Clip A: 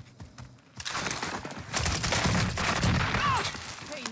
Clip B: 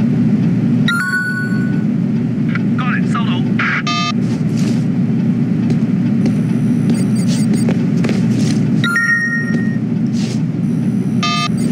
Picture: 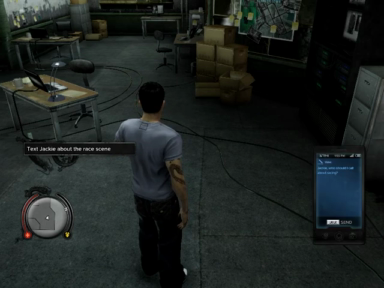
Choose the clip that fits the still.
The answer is B